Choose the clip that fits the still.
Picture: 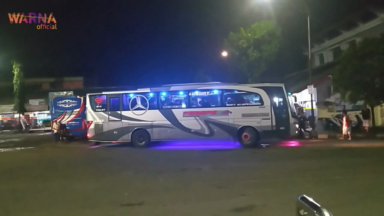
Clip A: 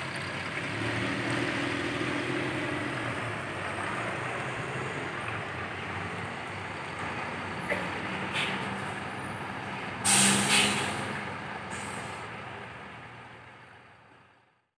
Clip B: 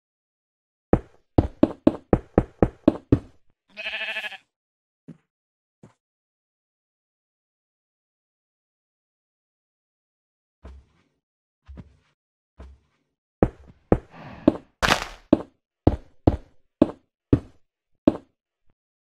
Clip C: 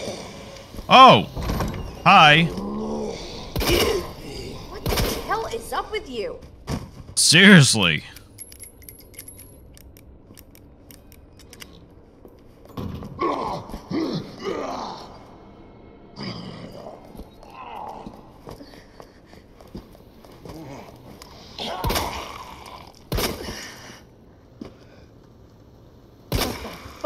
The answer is A